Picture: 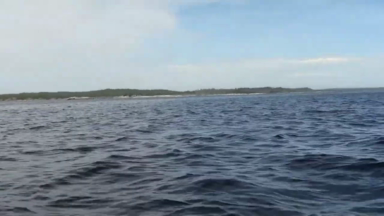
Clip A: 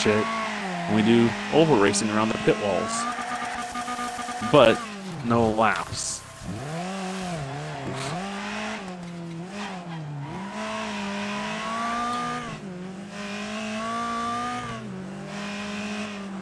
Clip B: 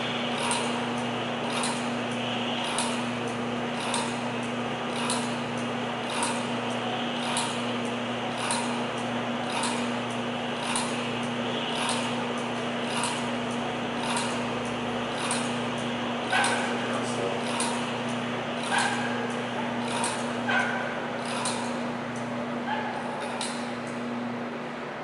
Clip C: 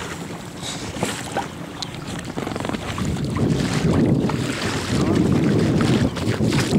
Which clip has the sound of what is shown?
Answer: C